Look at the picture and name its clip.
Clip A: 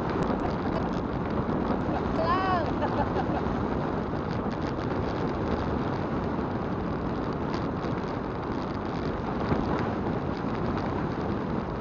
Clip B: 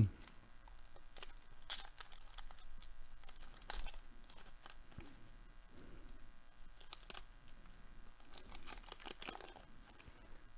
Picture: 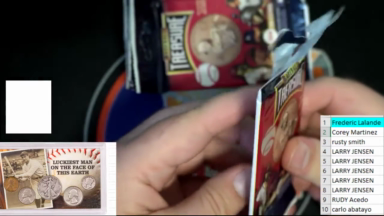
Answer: B